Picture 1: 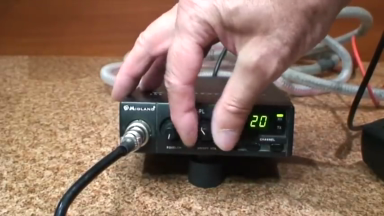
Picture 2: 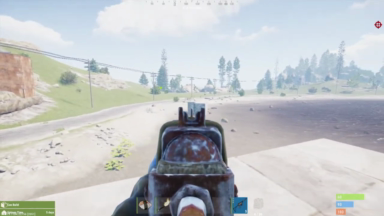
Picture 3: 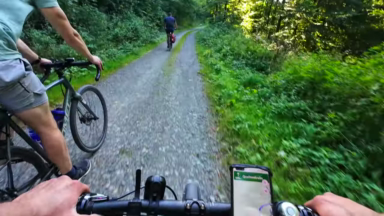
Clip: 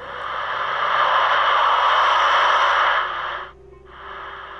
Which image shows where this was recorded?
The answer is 1